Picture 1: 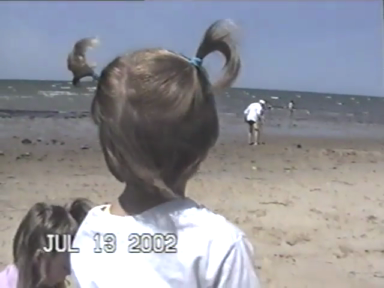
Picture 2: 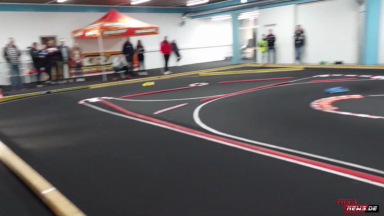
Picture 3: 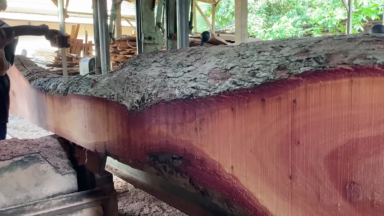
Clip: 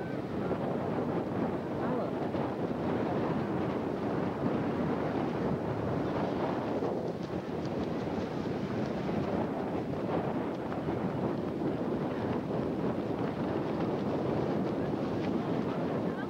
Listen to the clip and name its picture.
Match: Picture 1